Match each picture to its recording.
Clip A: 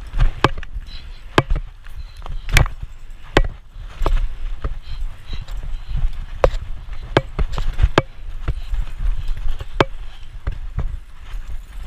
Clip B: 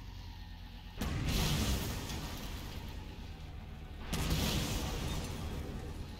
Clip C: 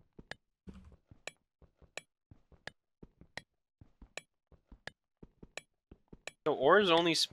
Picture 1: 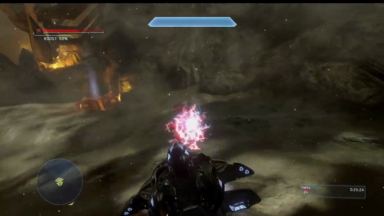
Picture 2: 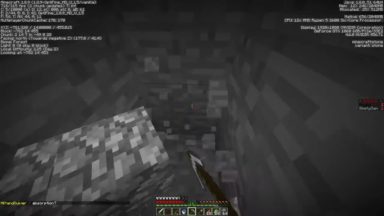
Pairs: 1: B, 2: C